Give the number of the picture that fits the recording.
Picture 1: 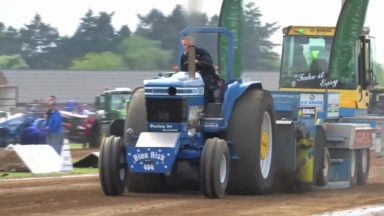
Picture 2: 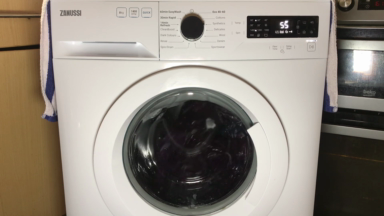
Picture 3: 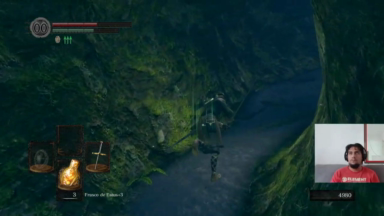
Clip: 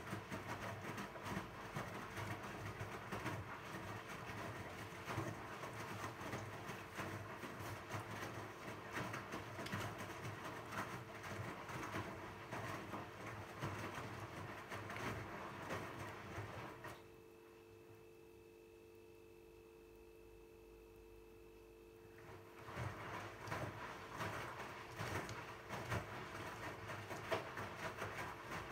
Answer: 2